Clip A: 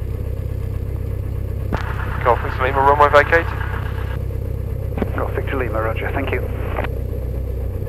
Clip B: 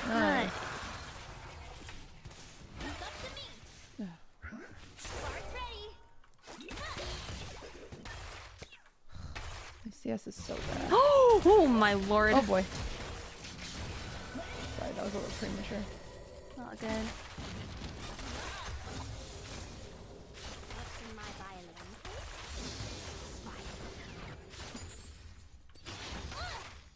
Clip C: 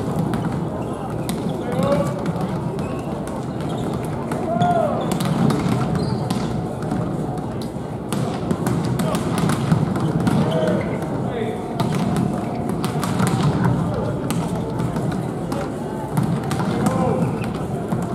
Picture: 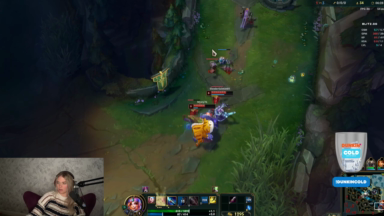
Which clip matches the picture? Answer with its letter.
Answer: B